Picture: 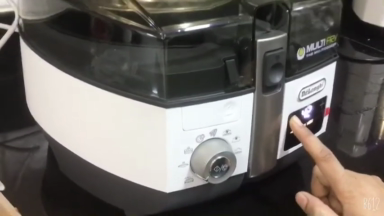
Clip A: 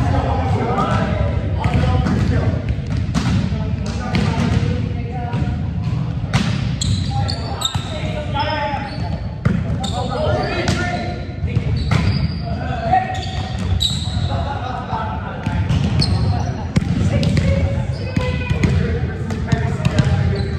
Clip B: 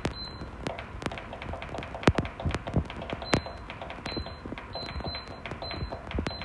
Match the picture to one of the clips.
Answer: B